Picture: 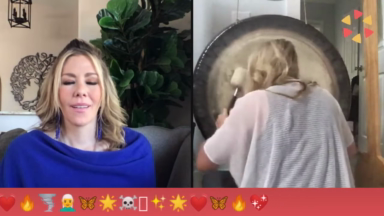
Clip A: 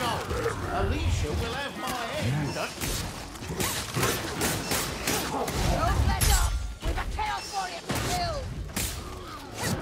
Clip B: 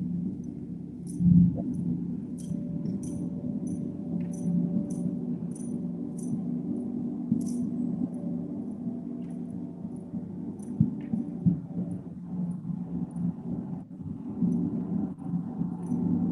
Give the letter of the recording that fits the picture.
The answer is B